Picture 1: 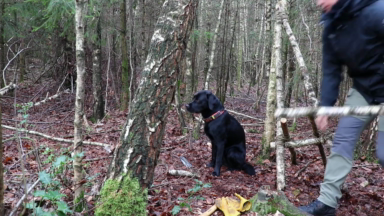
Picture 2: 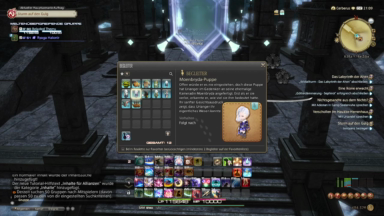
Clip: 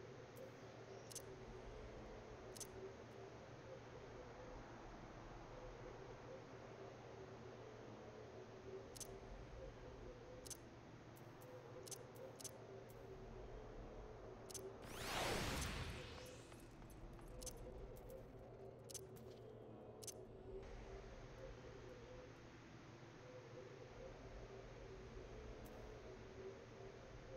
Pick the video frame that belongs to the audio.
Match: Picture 2